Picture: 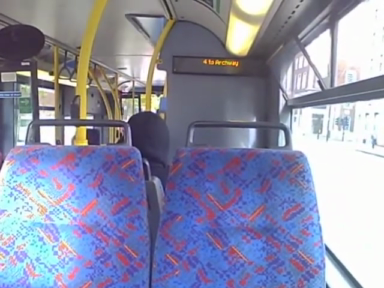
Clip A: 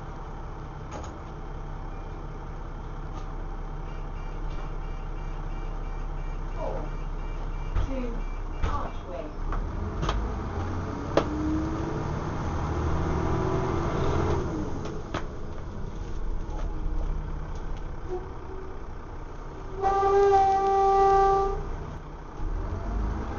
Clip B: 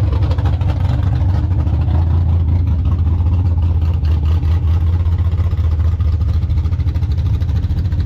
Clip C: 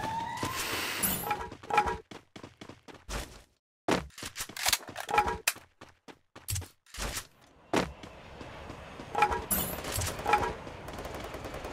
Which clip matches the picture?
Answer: A